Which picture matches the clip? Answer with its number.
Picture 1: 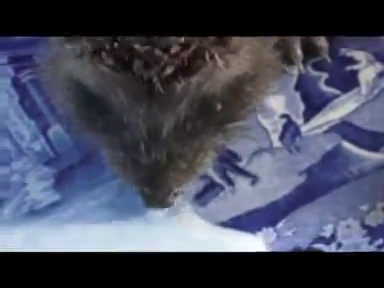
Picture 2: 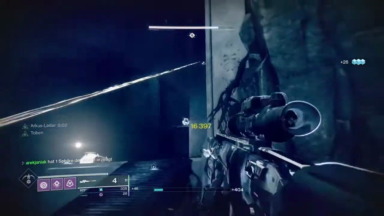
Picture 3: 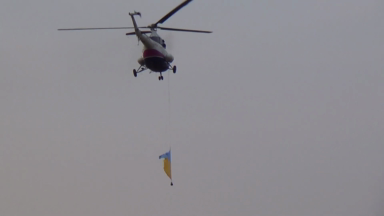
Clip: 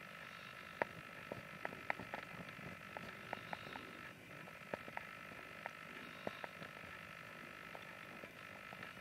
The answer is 1